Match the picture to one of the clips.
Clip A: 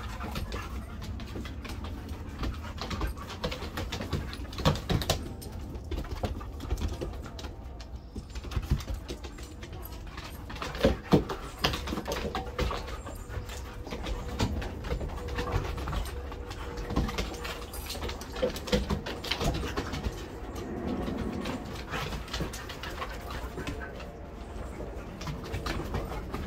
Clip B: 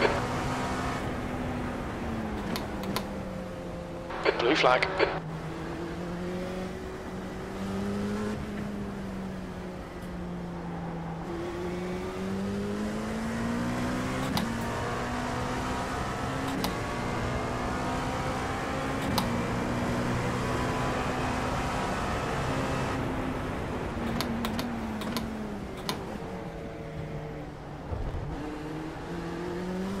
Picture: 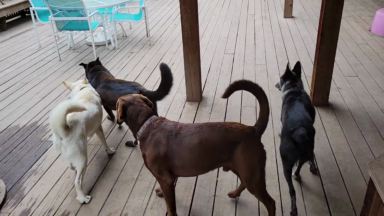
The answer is A